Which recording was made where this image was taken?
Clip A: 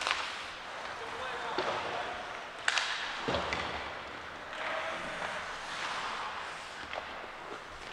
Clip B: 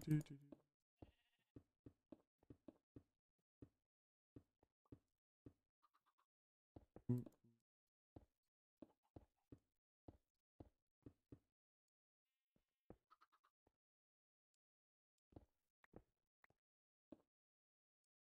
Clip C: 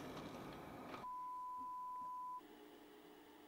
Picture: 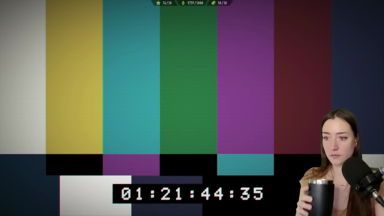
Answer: C